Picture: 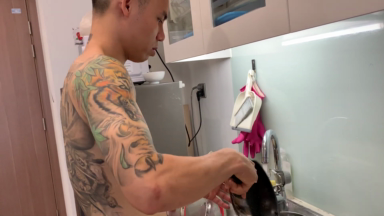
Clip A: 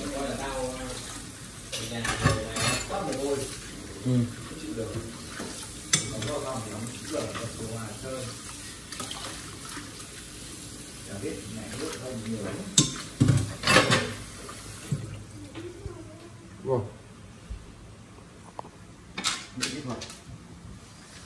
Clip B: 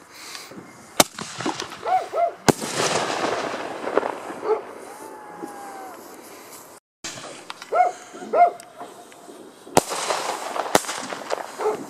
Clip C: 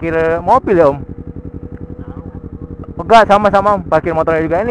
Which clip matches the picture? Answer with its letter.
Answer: A